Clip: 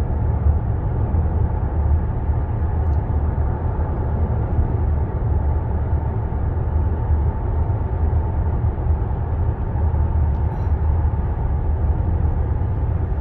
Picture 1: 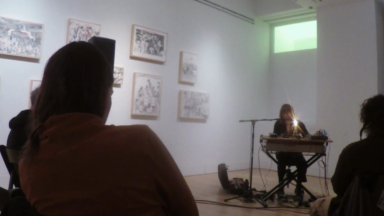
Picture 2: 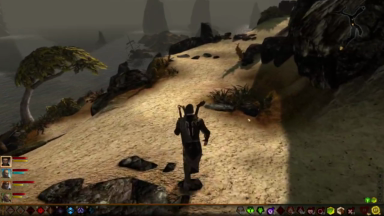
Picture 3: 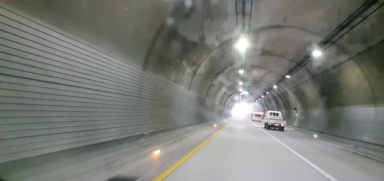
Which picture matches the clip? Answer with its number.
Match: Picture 3